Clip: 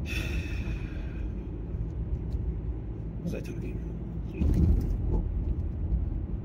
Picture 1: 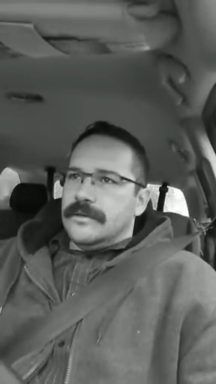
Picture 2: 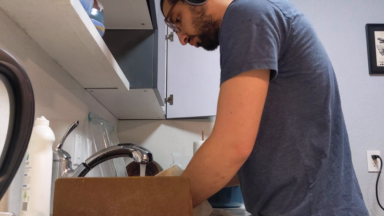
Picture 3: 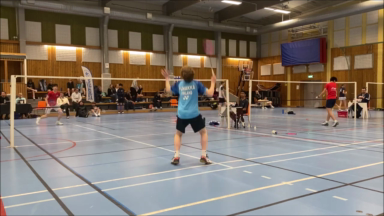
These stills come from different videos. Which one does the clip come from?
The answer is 1